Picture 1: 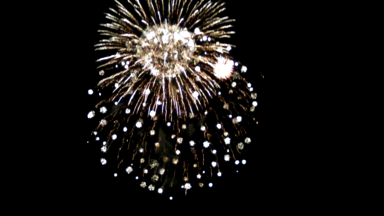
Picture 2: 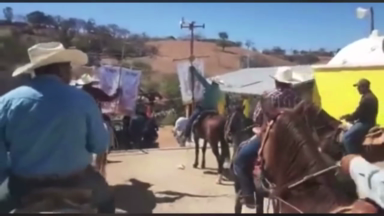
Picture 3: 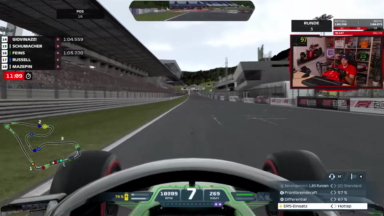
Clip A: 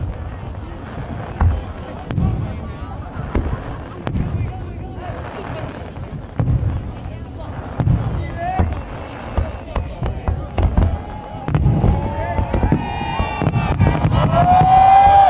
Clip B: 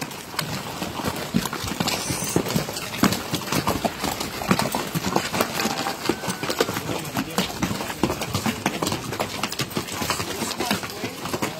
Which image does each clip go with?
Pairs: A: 1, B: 2